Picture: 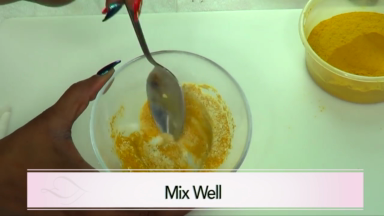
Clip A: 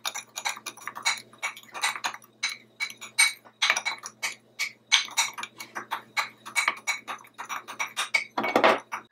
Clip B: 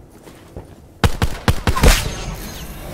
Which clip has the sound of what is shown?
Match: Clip A